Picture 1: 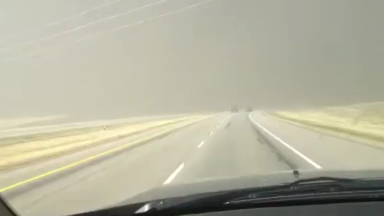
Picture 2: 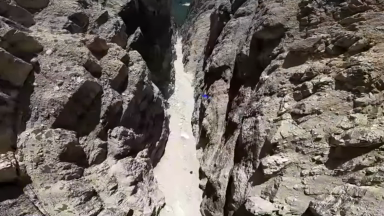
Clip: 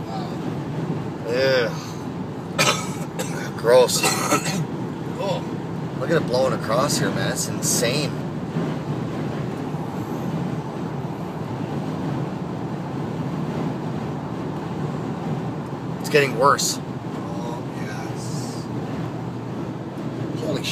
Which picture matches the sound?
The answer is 1